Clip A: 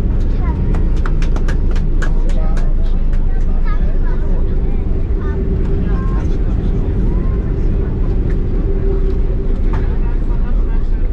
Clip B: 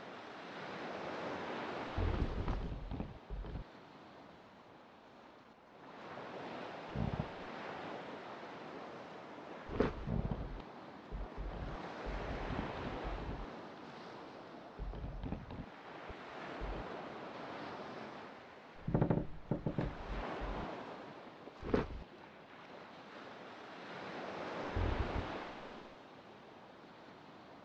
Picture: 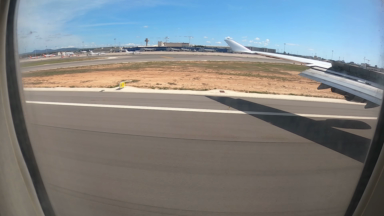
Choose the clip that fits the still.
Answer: A